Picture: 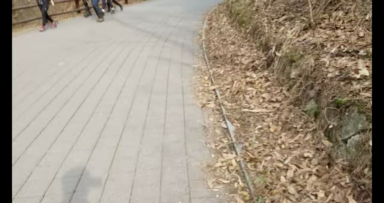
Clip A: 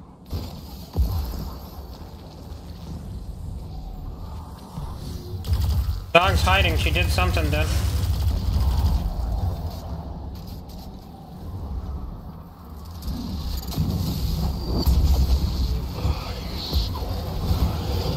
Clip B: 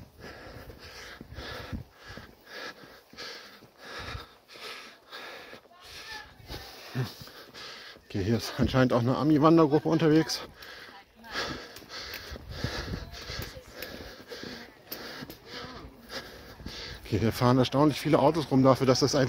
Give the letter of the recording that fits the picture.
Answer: B